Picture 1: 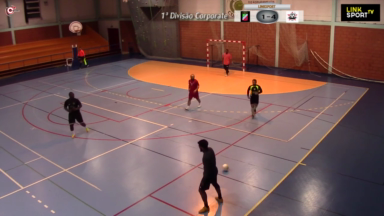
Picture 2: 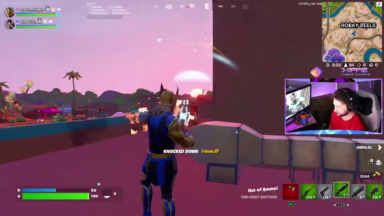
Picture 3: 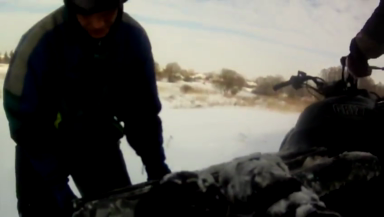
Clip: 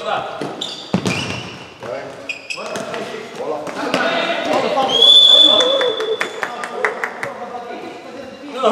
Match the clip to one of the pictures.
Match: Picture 1